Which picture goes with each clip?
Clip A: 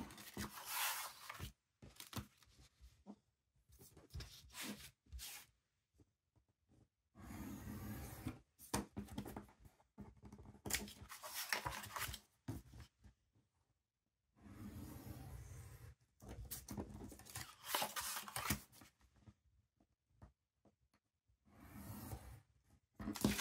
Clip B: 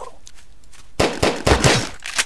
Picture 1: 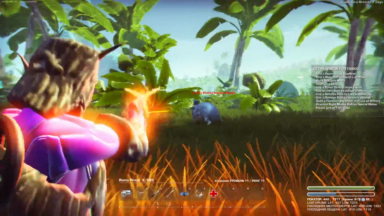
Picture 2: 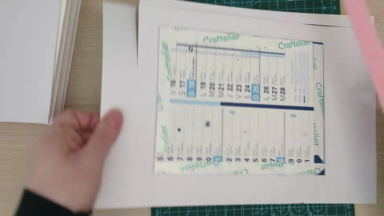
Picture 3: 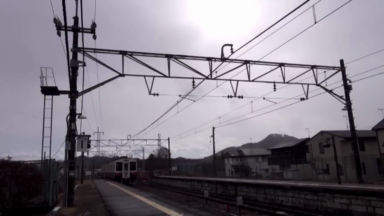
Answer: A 2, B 1